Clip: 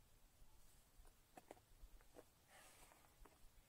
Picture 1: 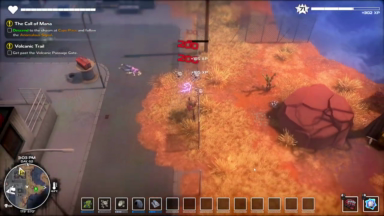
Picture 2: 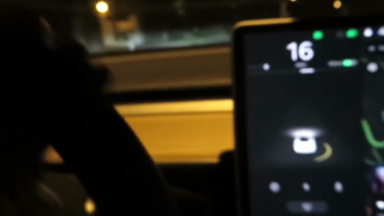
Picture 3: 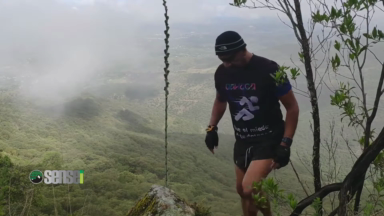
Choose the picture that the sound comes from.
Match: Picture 3